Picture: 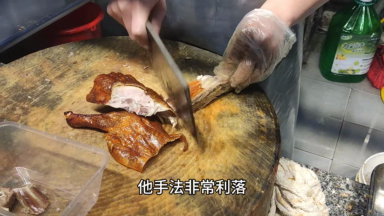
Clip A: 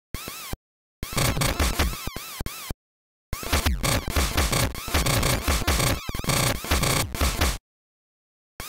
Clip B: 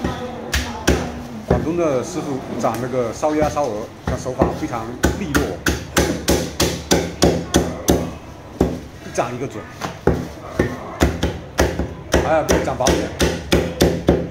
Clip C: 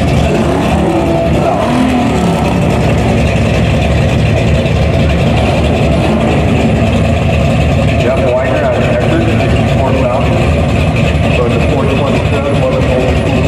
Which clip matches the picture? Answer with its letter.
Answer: B